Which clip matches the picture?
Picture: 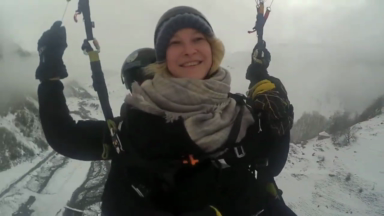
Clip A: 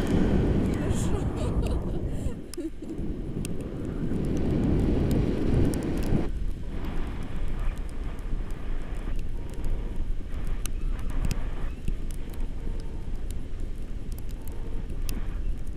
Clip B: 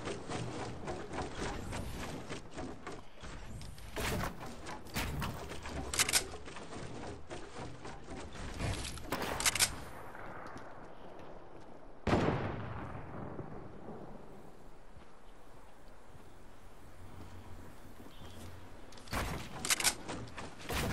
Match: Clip A